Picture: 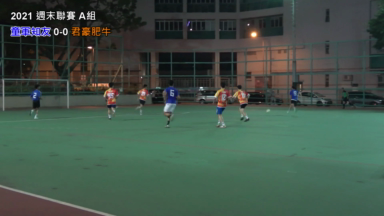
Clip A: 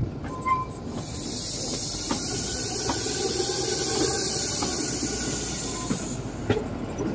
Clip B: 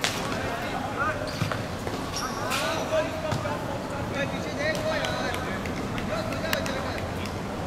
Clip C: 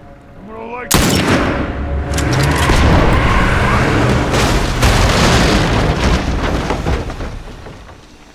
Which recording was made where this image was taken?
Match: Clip B